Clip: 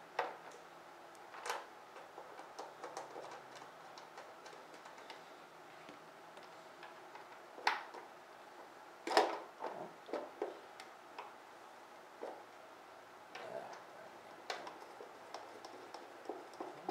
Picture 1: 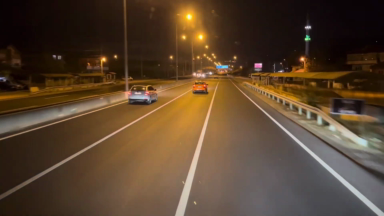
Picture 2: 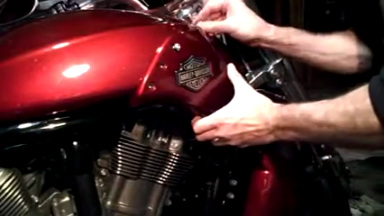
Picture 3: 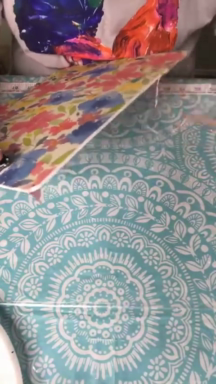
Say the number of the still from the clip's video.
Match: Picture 2